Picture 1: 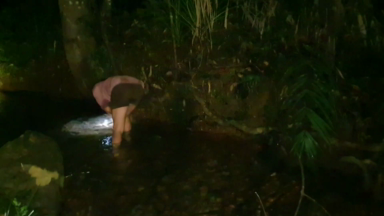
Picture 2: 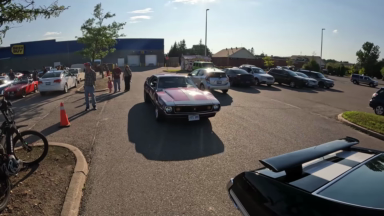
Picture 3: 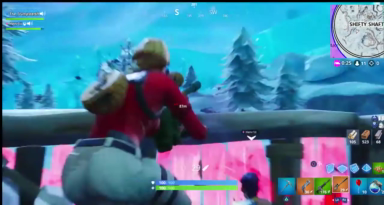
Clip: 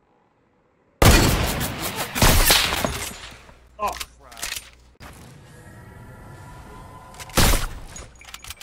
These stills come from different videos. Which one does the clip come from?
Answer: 3